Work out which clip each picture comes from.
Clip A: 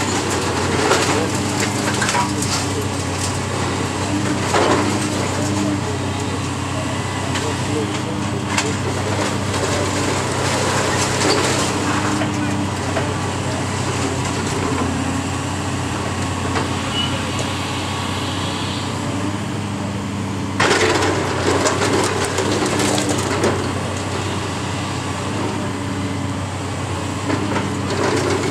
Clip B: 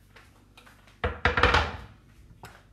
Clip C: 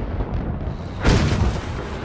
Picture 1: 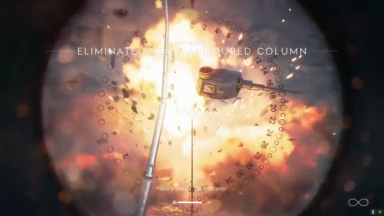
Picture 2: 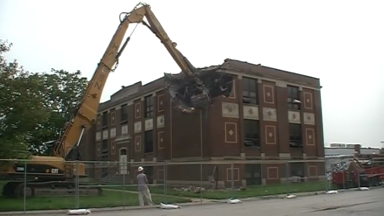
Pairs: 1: C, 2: A